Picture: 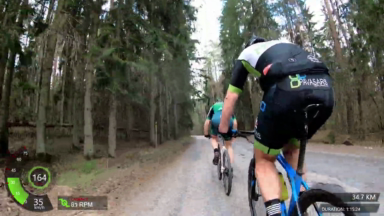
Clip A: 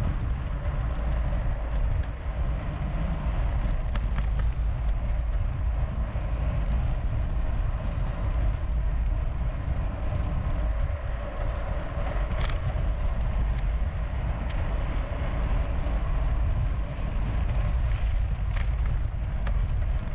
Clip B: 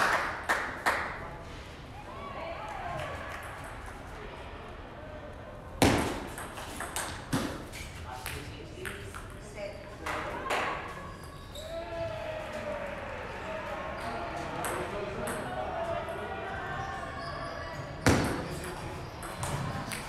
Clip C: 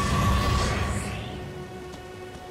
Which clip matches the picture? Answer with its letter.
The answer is A